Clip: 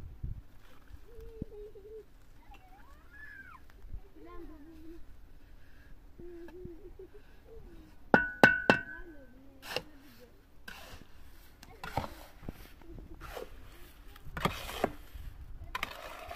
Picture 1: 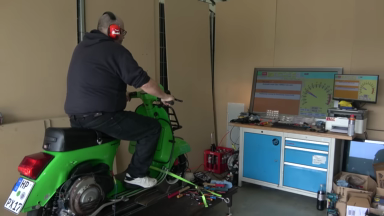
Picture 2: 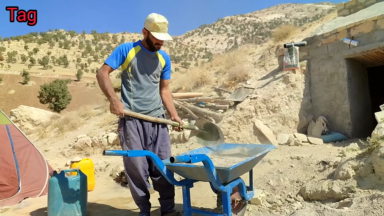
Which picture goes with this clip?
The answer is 2